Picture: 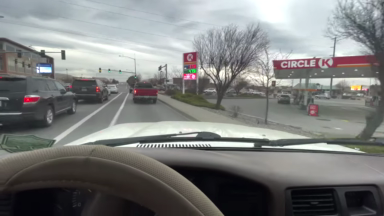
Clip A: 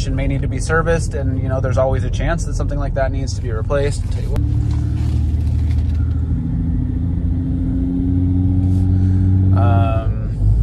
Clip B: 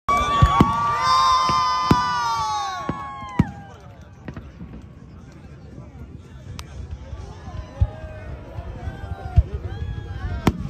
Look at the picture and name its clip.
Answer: A